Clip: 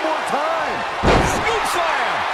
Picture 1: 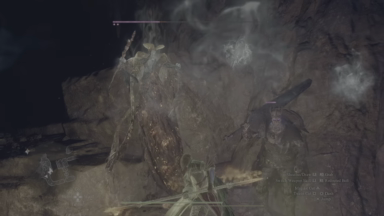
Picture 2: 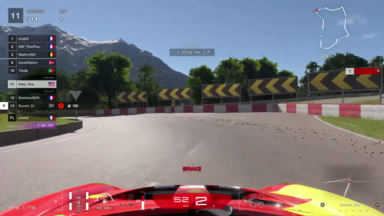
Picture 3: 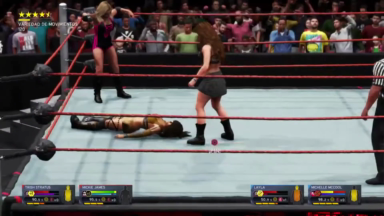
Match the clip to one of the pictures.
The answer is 3